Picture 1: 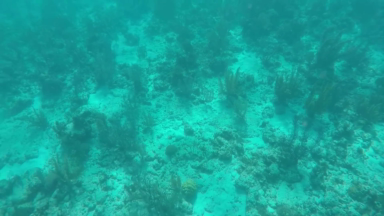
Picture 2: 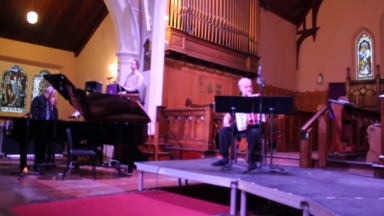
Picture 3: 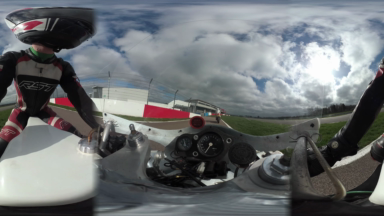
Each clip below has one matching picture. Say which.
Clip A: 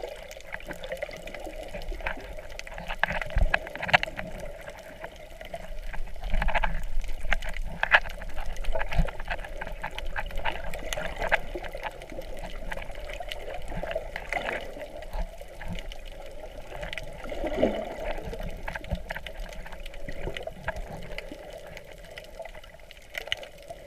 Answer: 1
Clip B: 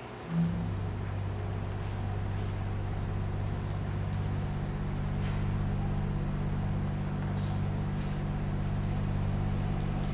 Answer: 2